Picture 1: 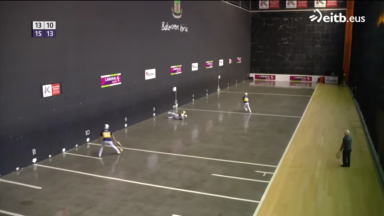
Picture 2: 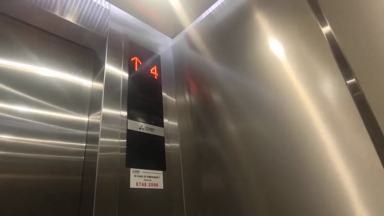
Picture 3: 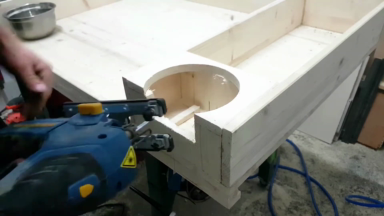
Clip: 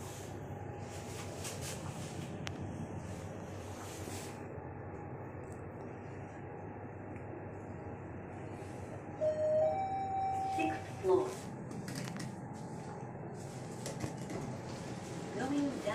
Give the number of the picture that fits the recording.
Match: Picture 2